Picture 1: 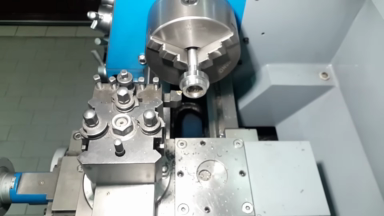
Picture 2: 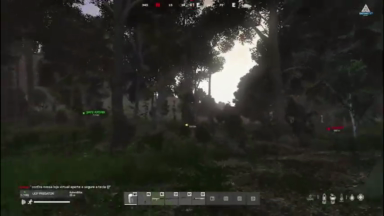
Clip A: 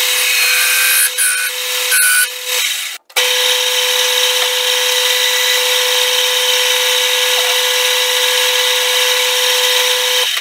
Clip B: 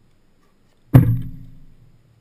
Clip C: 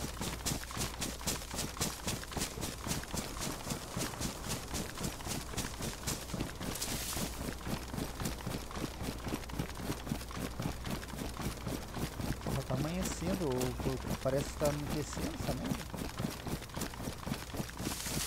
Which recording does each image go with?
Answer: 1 A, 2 C